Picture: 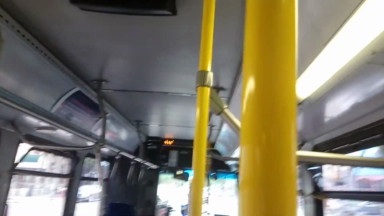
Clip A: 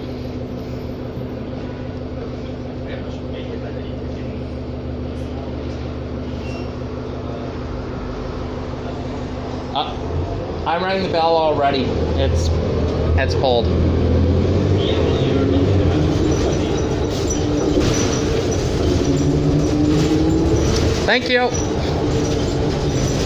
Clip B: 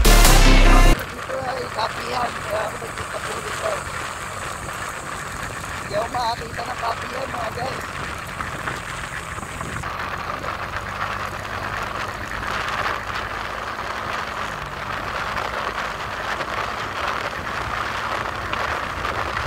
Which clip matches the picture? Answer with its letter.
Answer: A